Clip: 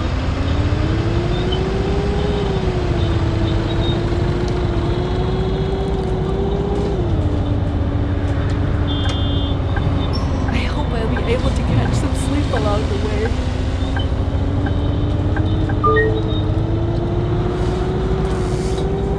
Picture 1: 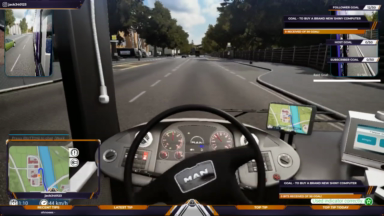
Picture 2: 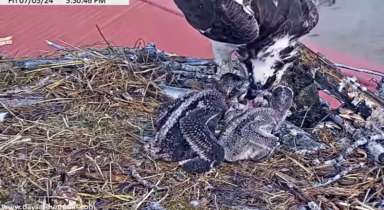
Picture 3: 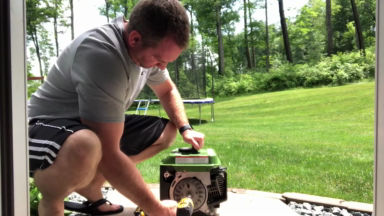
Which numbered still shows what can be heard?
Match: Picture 1